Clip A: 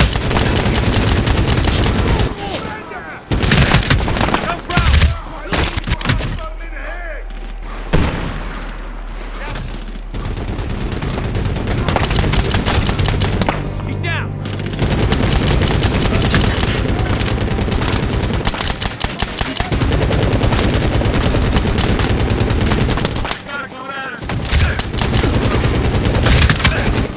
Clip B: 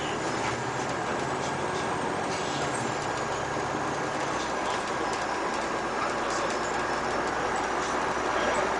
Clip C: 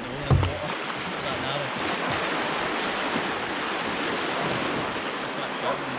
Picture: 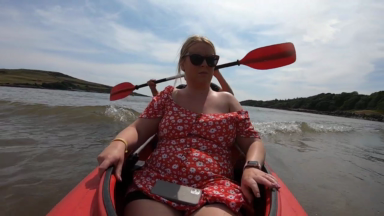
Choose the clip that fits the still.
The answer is C